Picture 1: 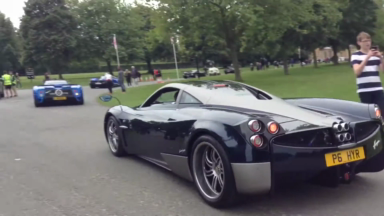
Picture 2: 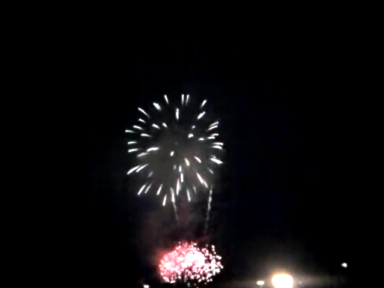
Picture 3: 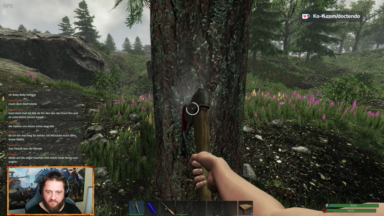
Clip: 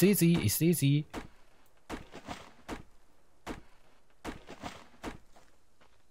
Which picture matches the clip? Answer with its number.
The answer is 3